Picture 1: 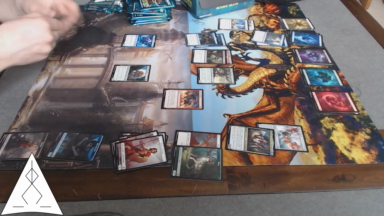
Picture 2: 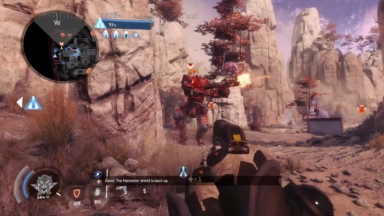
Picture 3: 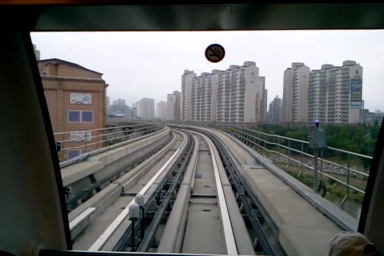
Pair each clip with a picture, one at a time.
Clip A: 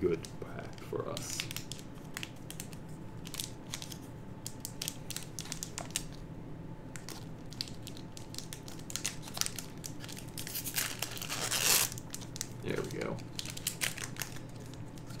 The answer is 1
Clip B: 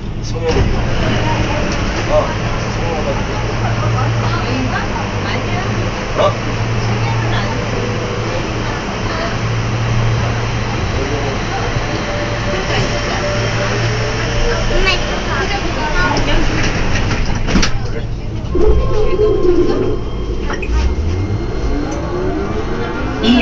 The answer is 3